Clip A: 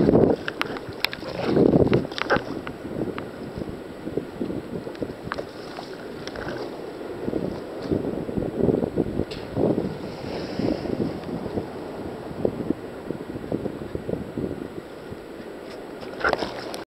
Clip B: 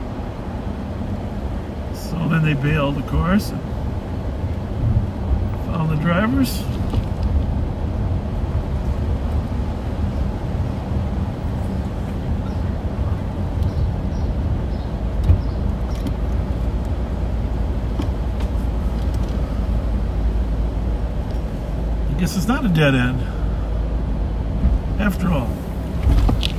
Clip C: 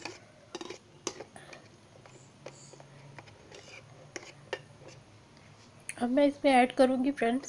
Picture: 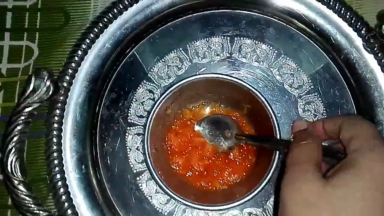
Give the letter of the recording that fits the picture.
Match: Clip C